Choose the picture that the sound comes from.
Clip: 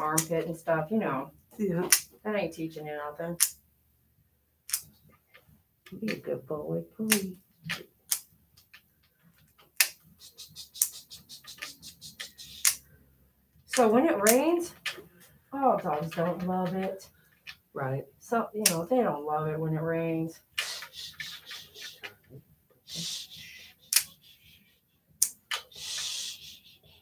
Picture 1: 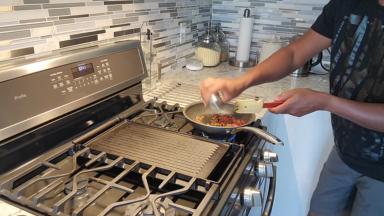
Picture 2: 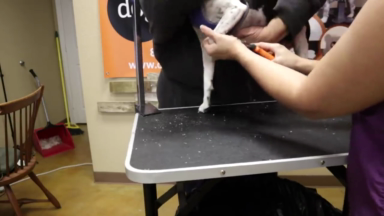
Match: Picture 2